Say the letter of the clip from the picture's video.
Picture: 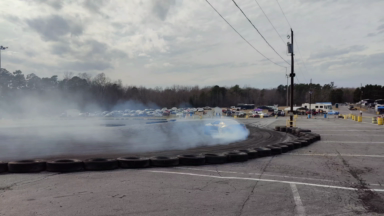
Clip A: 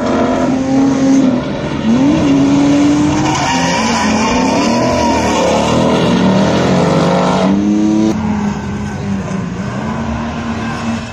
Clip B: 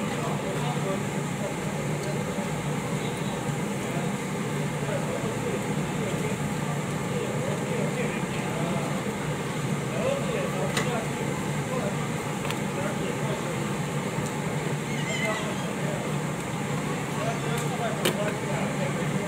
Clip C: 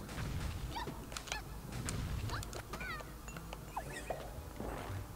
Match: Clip A